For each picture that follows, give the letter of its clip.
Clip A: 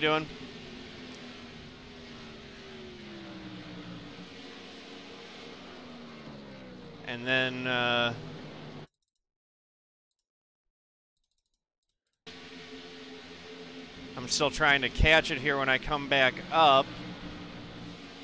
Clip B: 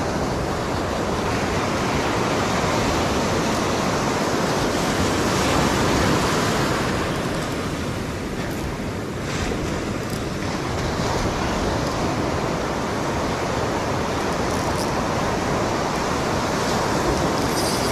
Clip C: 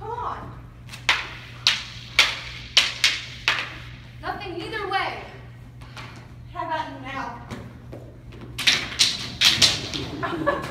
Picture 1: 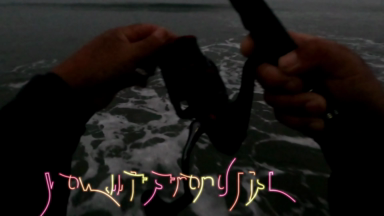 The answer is B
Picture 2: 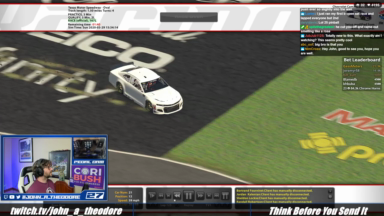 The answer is A